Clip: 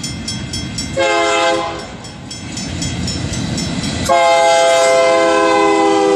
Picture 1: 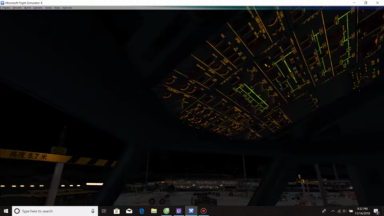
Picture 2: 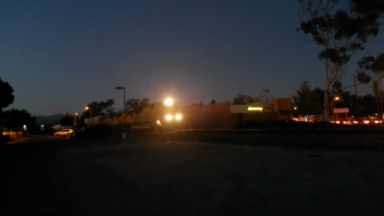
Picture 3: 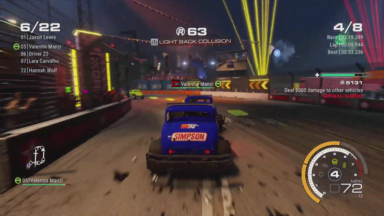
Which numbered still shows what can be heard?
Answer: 2